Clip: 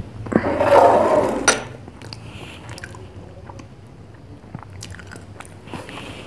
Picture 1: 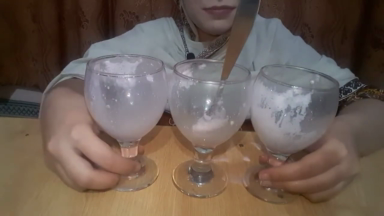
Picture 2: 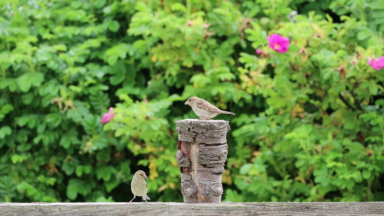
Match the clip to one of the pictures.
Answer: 1